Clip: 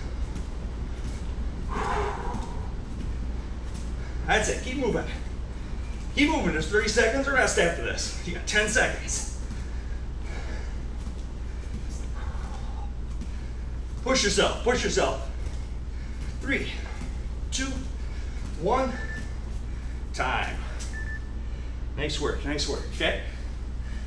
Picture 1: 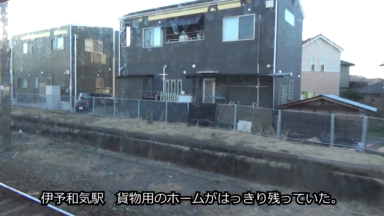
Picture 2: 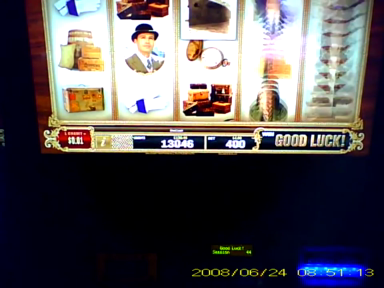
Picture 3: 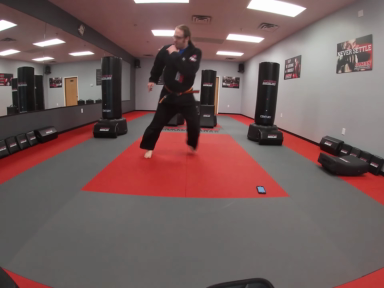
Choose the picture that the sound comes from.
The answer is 3